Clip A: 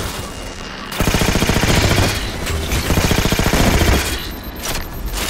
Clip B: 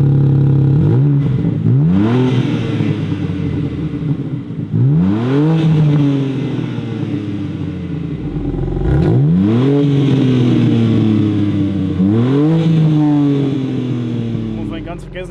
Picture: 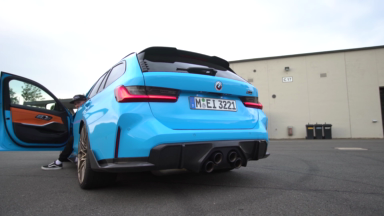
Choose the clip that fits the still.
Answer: B